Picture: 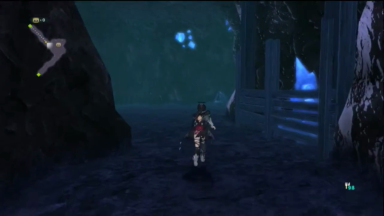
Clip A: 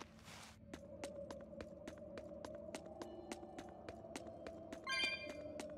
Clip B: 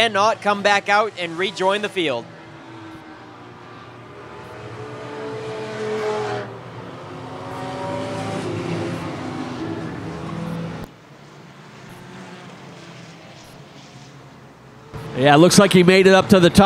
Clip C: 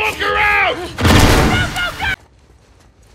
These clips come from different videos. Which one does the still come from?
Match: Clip A